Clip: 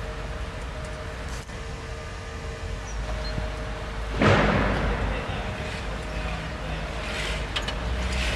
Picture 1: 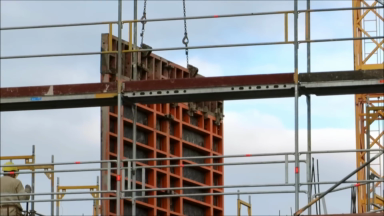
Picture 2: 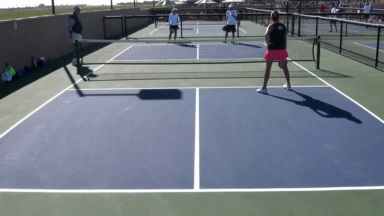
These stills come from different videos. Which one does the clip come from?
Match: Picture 1